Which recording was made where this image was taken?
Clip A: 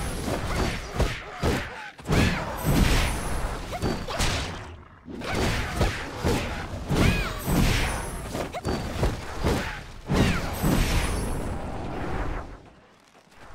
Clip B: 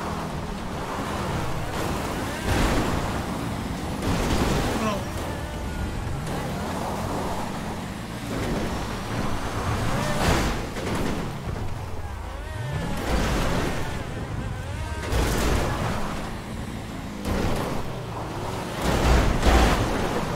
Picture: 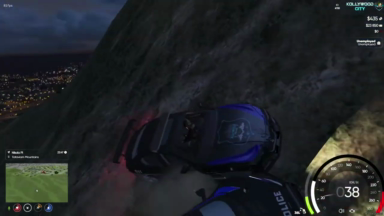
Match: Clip B